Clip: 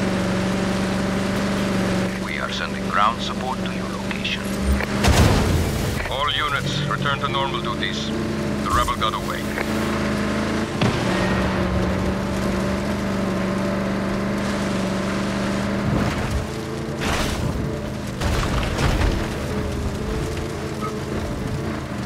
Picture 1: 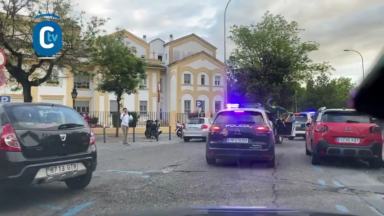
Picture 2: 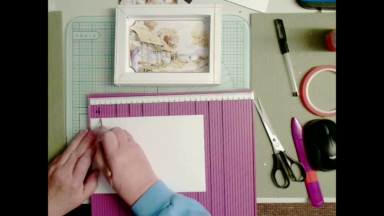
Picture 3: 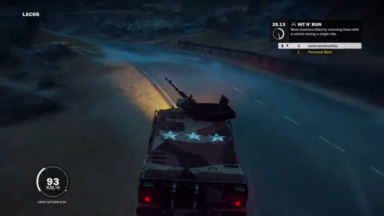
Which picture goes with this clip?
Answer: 3